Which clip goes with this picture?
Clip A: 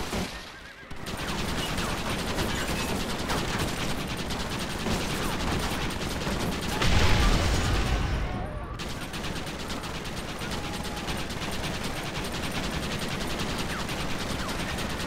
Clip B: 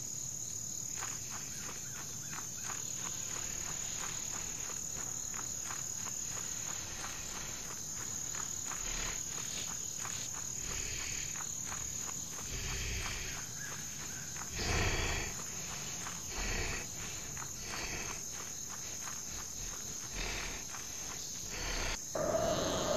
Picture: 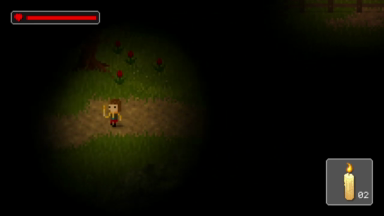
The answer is B